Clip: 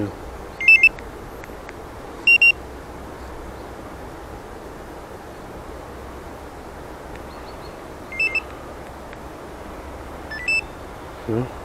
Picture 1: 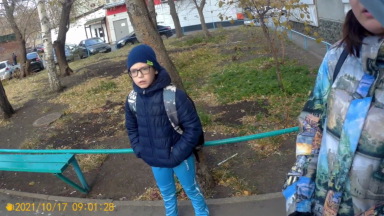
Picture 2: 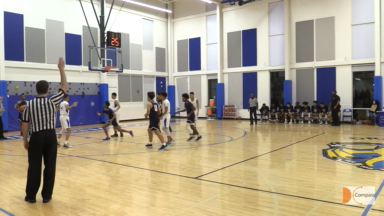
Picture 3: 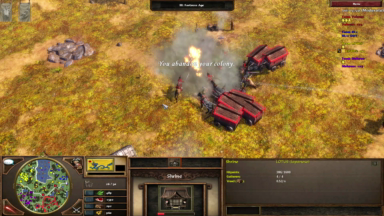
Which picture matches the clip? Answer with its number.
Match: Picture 1